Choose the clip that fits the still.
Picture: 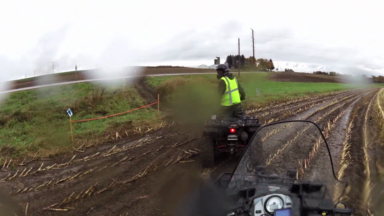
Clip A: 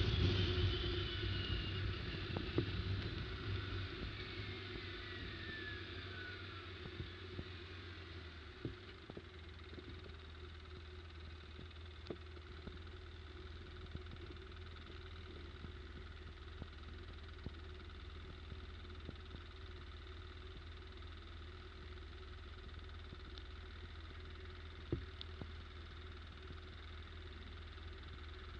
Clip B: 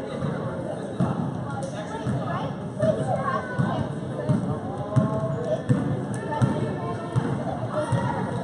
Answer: A